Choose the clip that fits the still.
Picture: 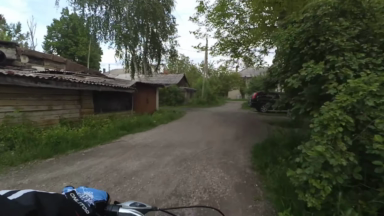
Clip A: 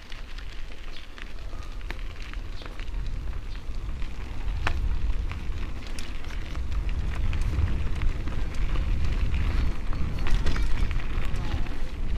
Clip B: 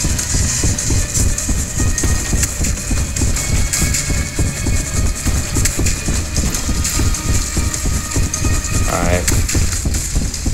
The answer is A